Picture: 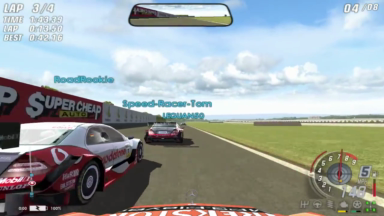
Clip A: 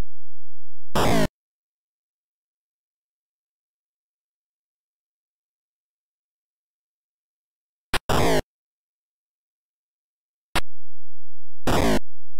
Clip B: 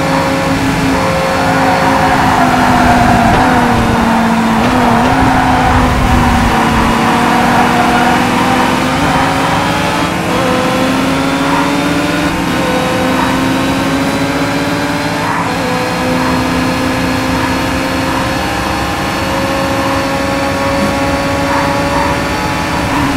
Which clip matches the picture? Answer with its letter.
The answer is B